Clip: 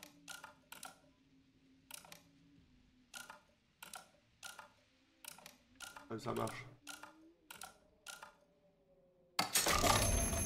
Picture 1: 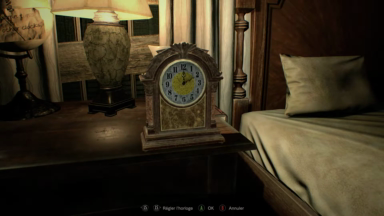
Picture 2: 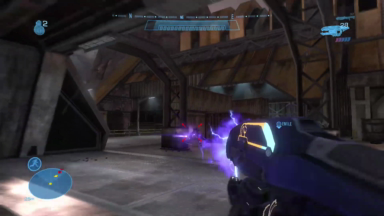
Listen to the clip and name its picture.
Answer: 1